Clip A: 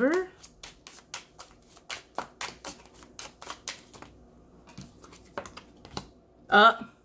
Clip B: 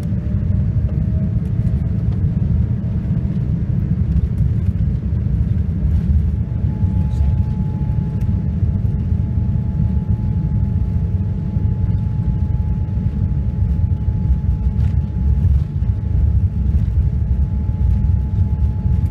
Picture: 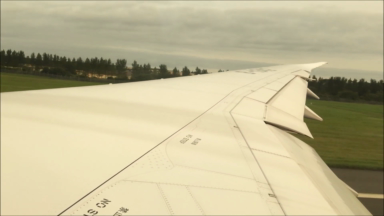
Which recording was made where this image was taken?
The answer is B